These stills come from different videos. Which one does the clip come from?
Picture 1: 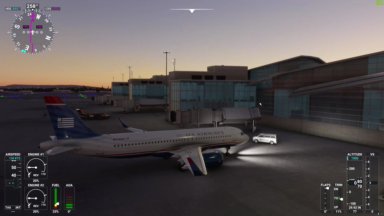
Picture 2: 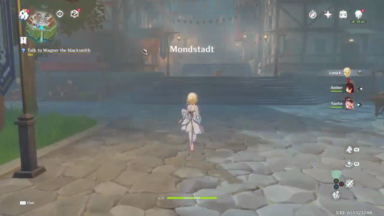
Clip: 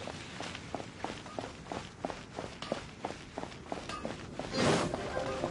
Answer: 2